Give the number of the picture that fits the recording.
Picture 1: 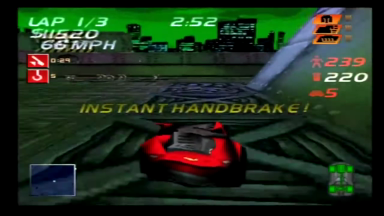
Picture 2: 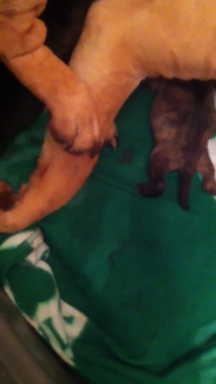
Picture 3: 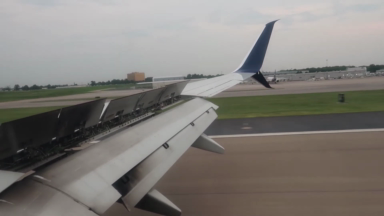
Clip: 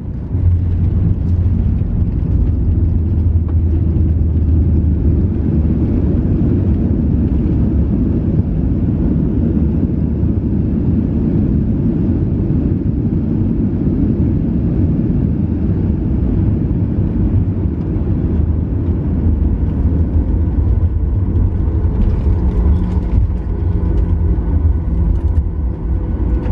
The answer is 3